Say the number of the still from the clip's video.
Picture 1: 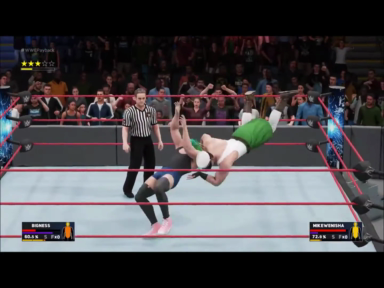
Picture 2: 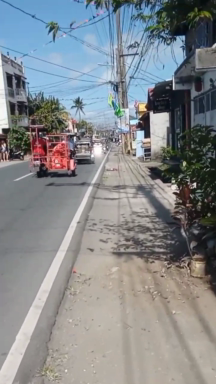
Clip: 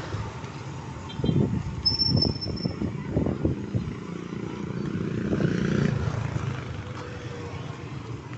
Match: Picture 2